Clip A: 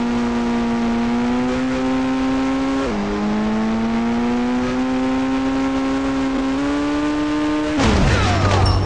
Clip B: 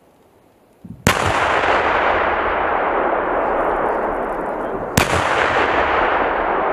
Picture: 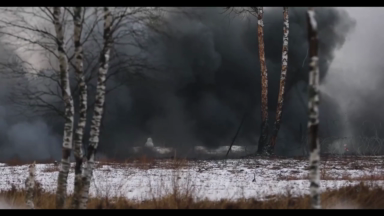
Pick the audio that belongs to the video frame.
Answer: B